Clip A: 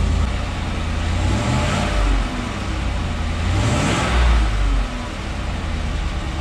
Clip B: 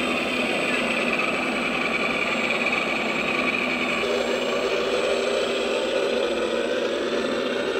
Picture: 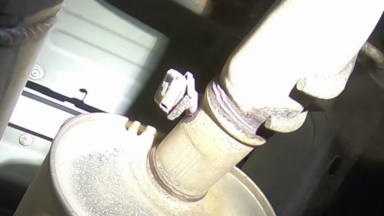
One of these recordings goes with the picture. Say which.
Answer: A